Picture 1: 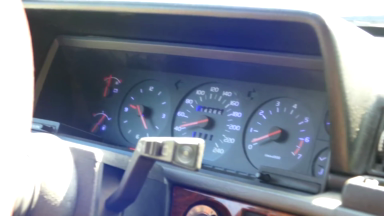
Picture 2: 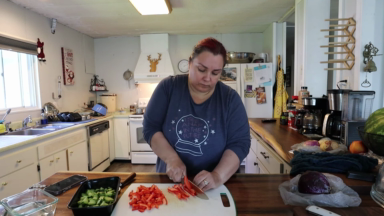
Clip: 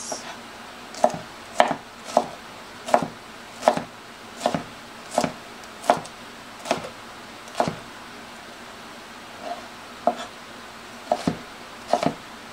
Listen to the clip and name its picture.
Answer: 2